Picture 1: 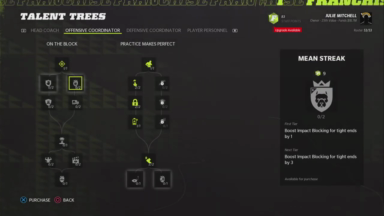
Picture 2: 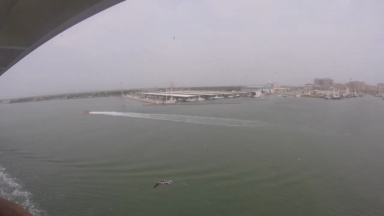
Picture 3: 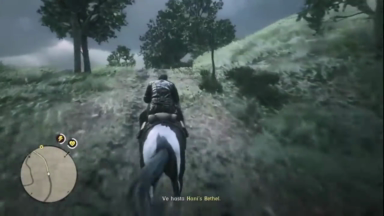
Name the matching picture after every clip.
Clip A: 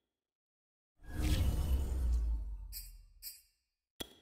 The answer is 1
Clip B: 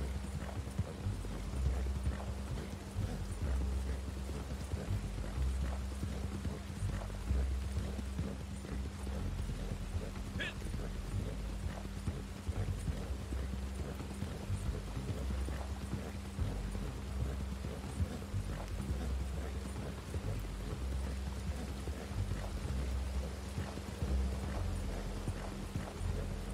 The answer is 3